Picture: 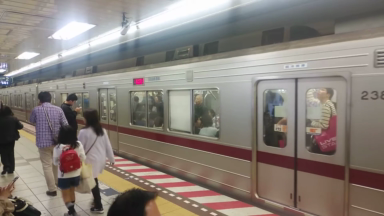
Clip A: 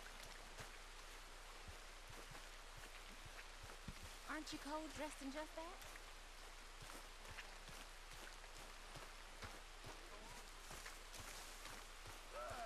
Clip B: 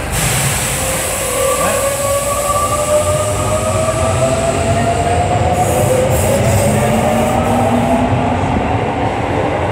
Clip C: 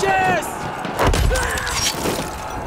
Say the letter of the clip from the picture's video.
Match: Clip B